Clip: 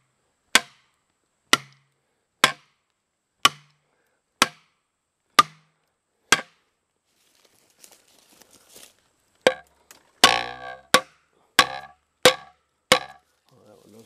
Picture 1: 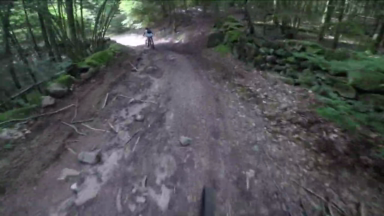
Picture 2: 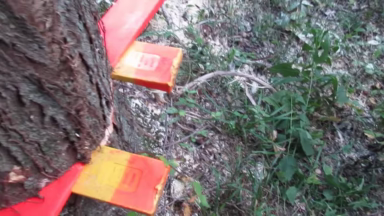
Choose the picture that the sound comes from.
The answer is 2